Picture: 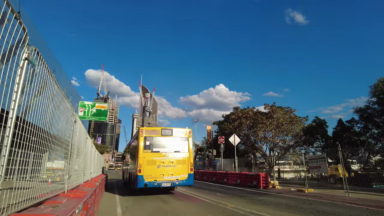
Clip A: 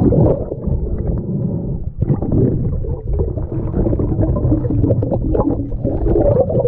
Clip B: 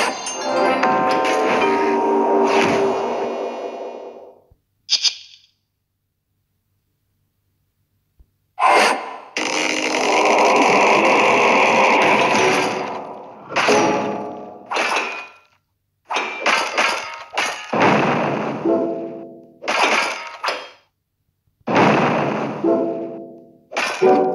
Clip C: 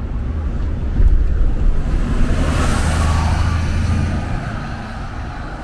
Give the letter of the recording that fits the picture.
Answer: C